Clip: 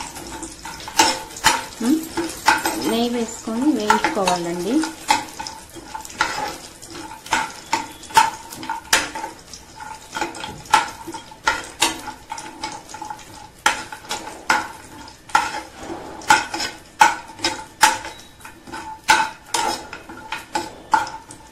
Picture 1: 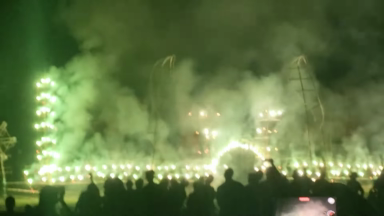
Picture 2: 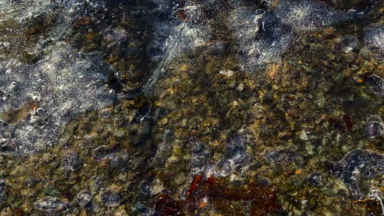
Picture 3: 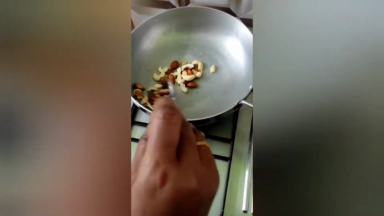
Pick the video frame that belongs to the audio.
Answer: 3